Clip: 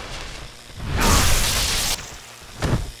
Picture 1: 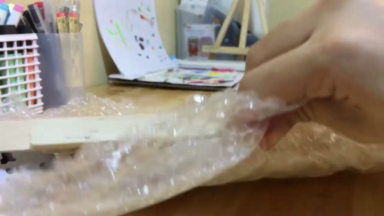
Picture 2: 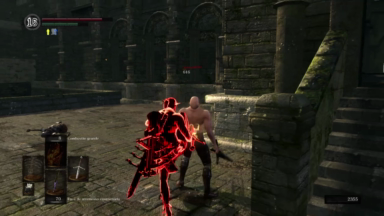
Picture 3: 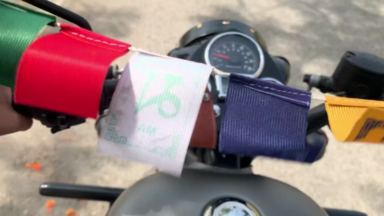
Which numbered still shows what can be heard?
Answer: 2